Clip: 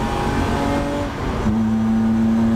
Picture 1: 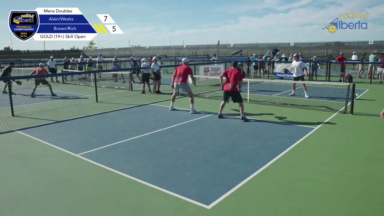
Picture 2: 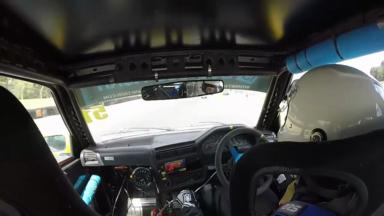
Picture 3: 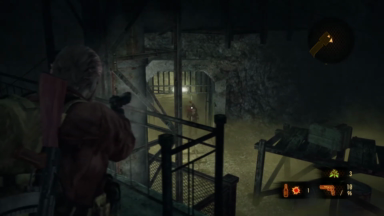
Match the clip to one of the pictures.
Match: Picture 2